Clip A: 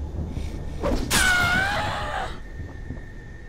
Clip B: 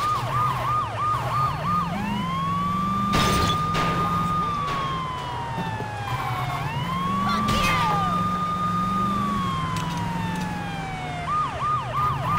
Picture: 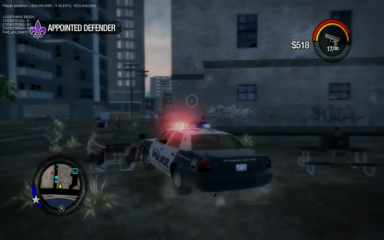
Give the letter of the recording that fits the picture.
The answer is B